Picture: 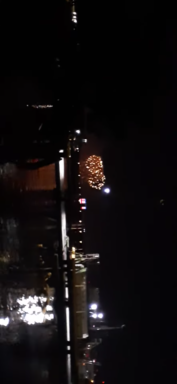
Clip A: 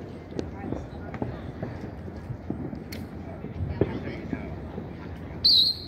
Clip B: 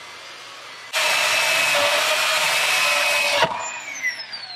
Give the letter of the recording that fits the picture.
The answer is A